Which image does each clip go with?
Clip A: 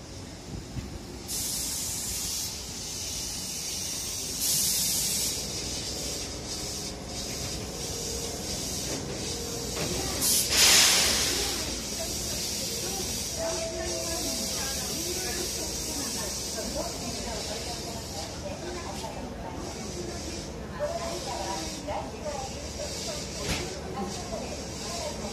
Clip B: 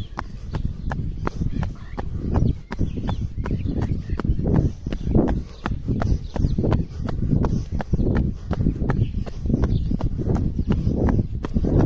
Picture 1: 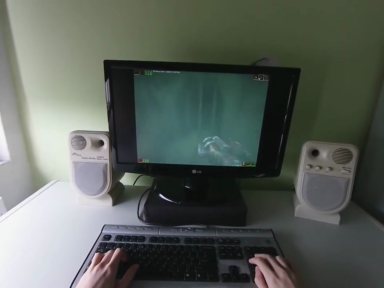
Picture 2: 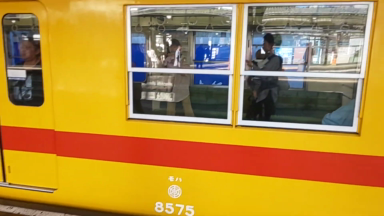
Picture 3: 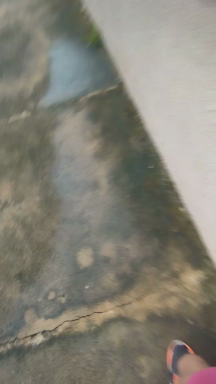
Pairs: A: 2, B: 3